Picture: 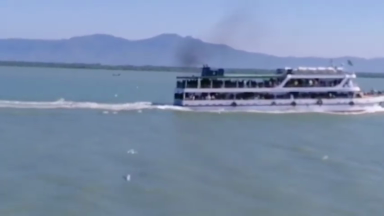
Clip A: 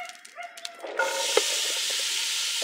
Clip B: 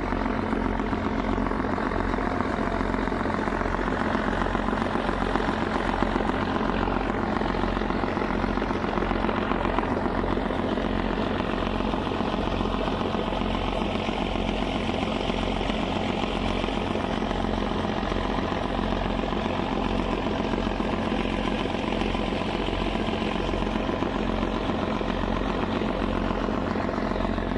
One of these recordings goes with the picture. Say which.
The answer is B